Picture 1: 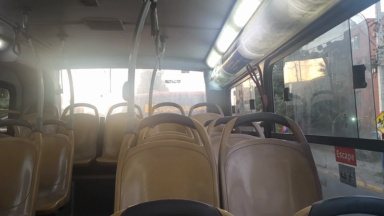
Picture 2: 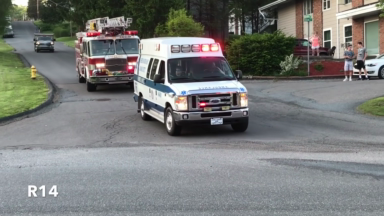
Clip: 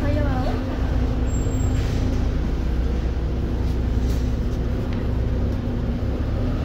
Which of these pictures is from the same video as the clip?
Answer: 1